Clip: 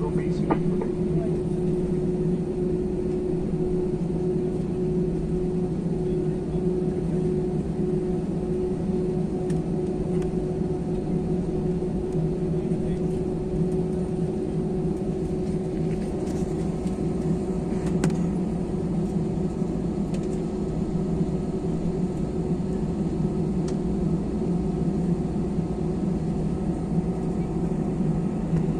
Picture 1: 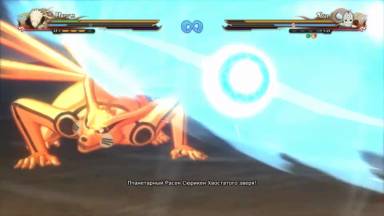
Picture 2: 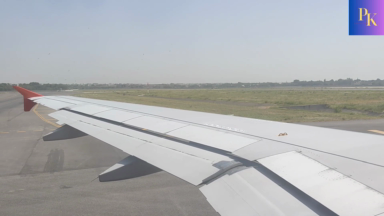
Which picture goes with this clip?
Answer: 2